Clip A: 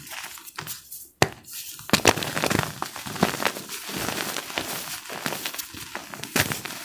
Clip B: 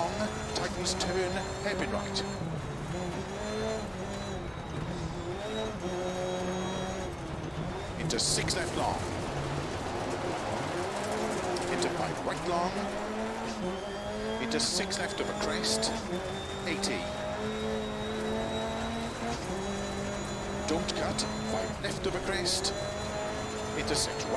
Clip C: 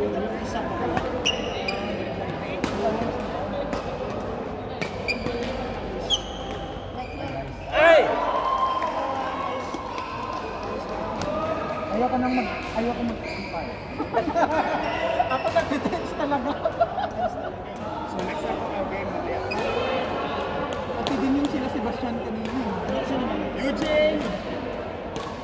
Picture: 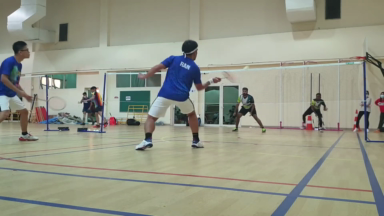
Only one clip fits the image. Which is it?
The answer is C